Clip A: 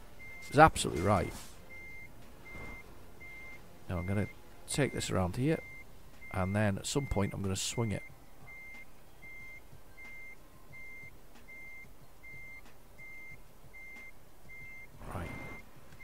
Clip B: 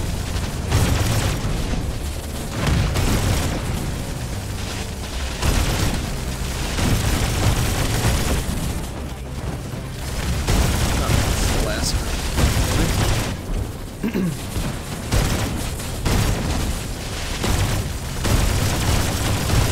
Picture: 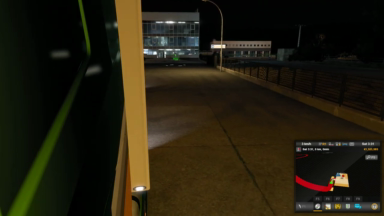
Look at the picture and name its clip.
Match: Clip A